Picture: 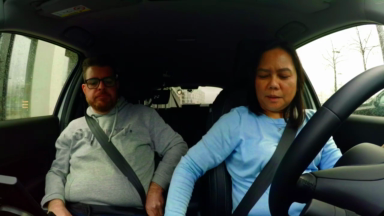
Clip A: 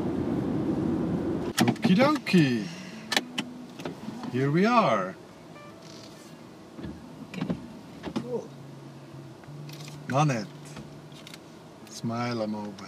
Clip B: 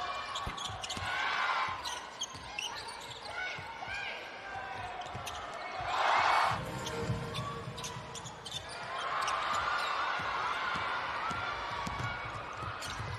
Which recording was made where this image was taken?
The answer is A